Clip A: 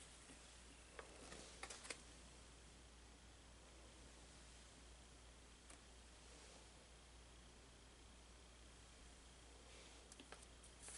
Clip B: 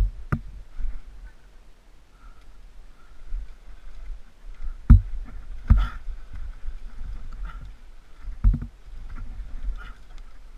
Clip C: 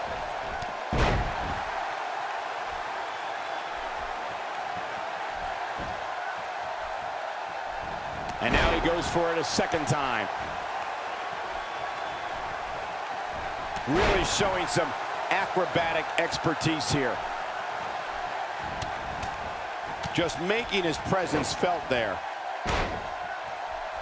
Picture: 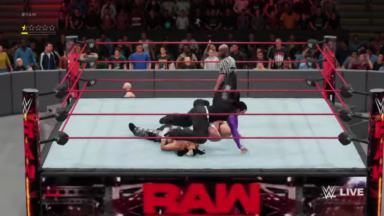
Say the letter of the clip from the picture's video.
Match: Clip C